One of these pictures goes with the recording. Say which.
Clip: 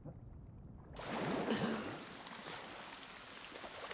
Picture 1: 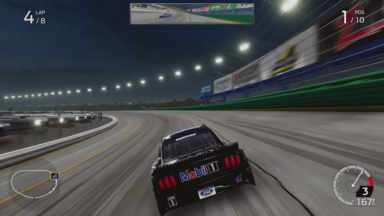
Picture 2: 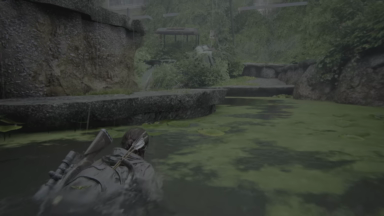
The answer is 2